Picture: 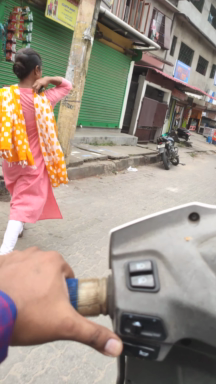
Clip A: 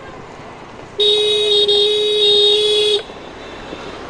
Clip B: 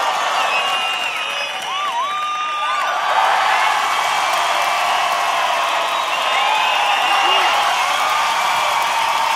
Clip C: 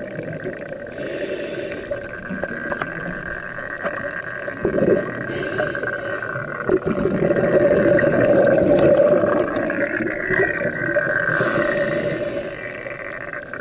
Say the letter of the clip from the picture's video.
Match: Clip A